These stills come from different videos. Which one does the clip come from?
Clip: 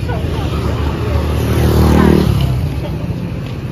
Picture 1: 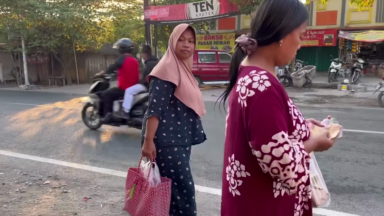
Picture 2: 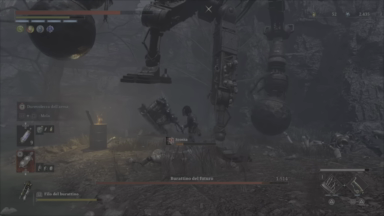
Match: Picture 1